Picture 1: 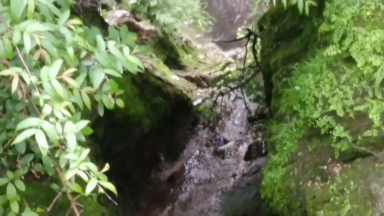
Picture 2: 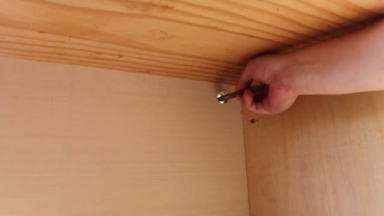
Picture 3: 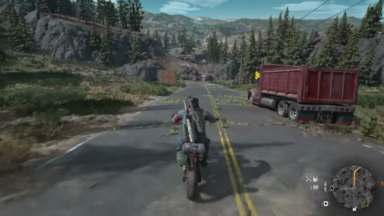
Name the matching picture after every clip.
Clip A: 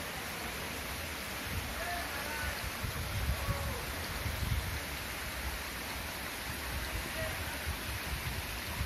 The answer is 1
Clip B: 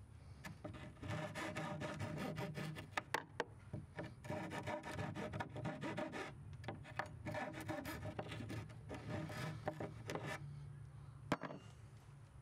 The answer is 2